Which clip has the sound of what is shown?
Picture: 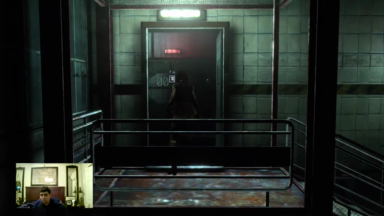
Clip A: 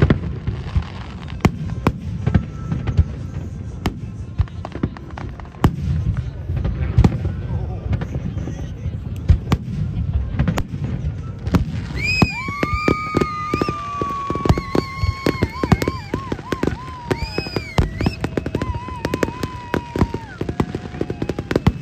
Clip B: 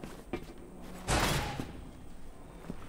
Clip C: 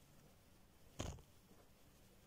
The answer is B